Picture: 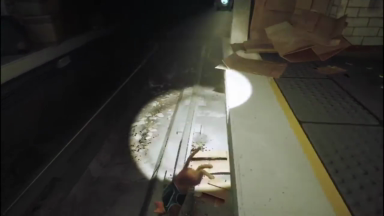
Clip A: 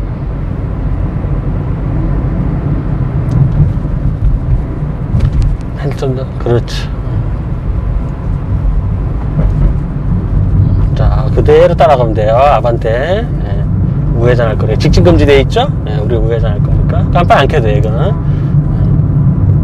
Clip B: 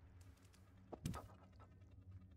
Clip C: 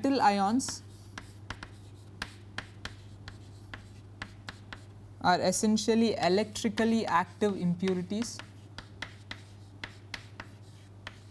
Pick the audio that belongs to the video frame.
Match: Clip B